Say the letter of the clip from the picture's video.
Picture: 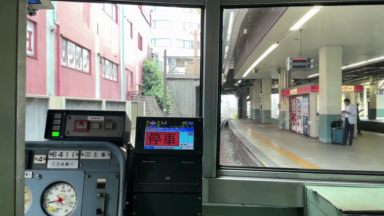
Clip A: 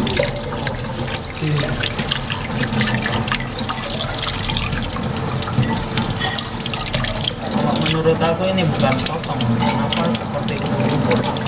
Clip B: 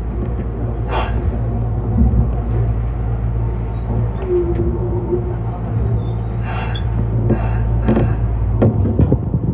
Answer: B